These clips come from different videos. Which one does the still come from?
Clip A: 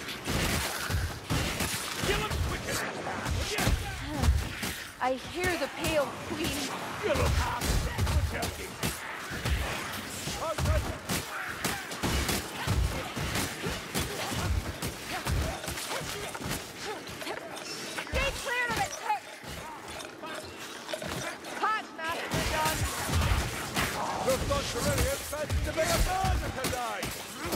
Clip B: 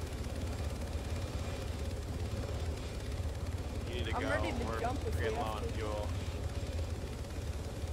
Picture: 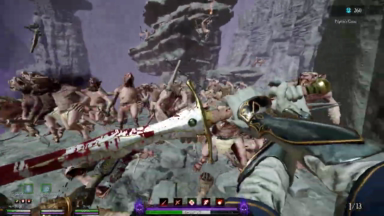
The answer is A